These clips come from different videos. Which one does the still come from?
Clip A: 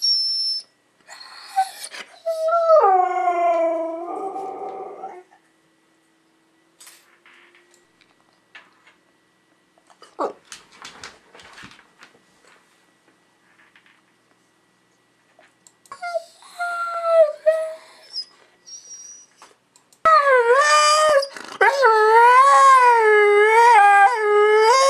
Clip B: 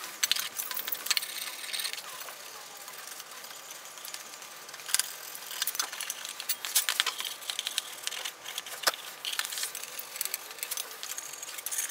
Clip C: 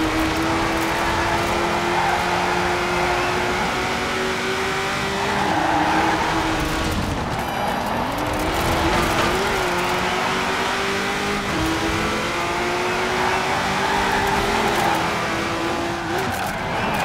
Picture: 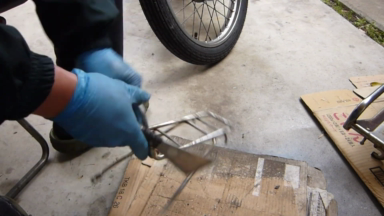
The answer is B